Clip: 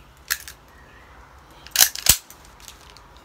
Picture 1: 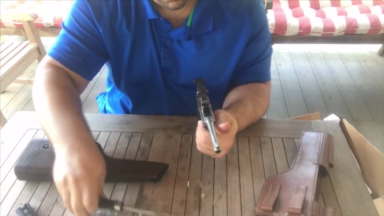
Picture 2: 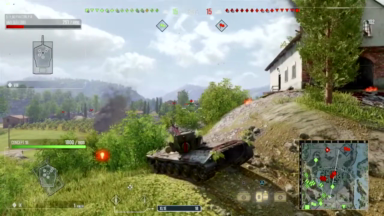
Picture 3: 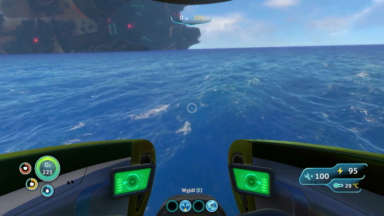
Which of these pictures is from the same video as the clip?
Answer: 1